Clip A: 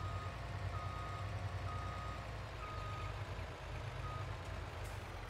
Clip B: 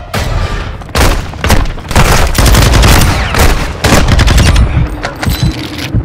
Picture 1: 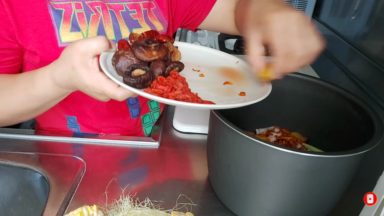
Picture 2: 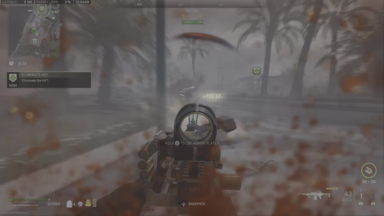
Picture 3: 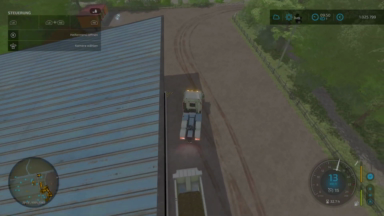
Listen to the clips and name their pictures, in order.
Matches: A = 3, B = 2